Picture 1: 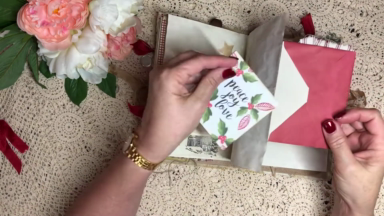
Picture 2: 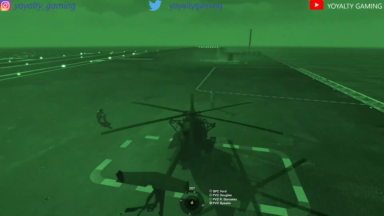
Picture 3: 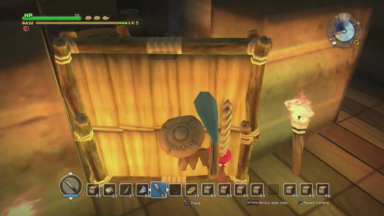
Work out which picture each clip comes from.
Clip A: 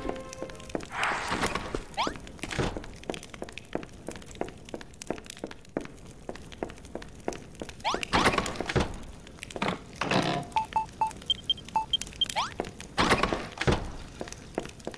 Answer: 3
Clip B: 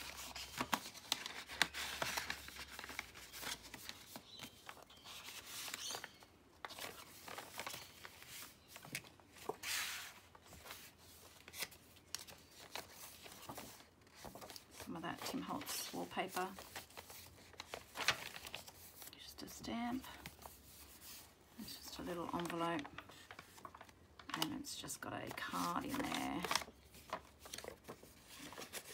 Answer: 1